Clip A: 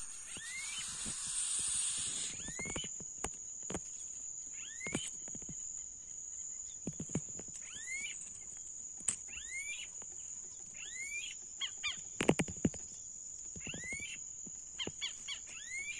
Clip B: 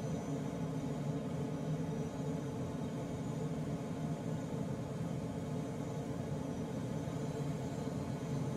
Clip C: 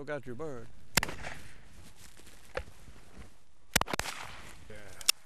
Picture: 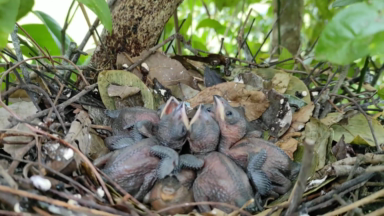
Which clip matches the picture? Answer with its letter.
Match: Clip A